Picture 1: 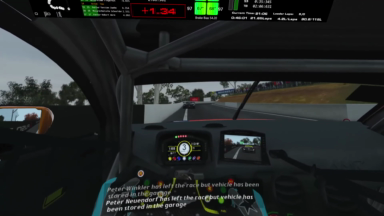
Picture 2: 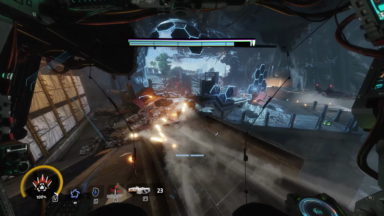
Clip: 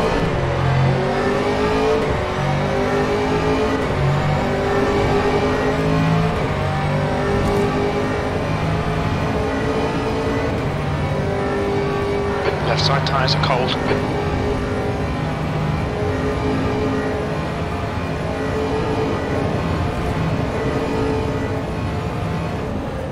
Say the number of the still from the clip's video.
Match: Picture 1